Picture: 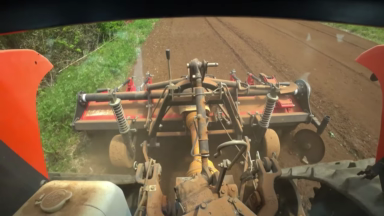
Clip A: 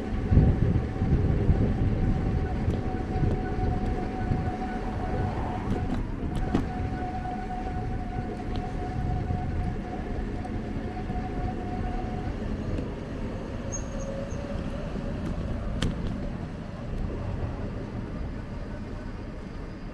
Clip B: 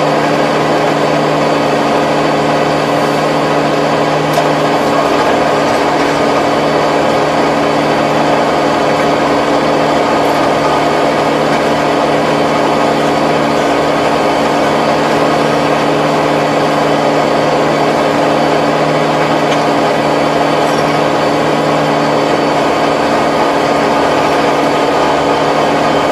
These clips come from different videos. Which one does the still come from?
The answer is B